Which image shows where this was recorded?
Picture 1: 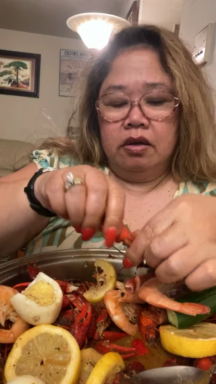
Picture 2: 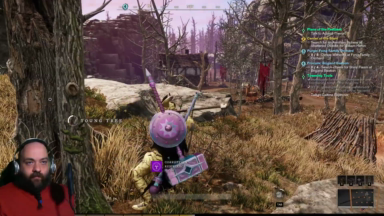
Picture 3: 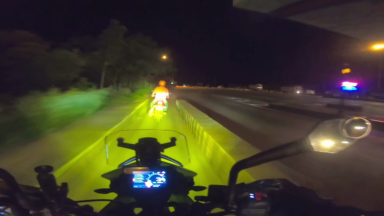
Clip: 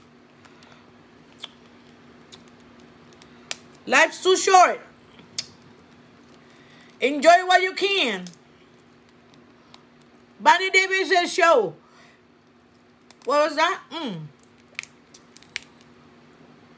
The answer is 1